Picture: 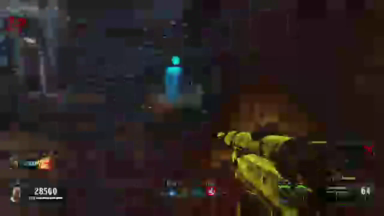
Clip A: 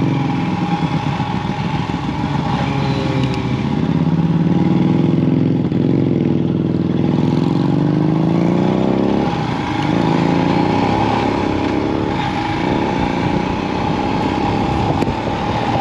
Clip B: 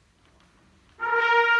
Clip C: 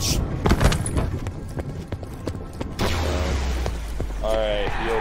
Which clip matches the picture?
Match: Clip C